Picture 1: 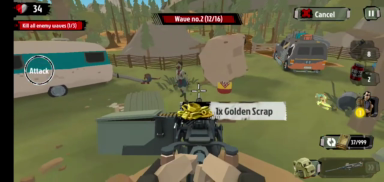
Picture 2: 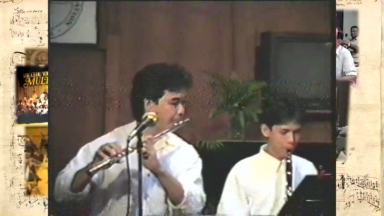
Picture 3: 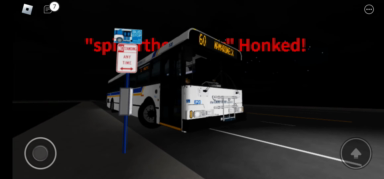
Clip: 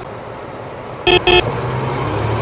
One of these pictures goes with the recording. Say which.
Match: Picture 3